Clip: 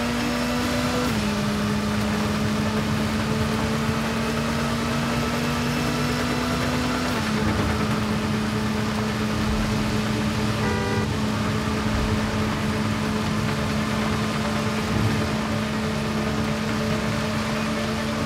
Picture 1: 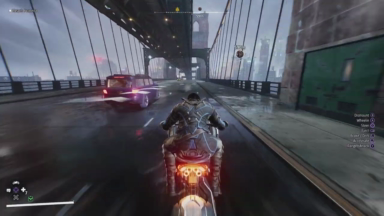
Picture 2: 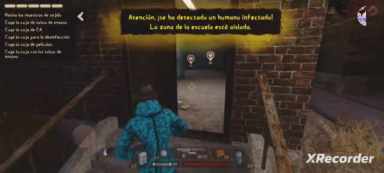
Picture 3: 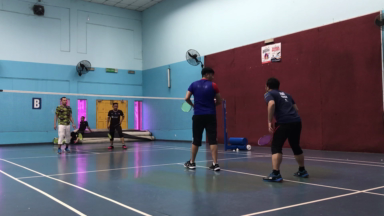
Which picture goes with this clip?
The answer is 1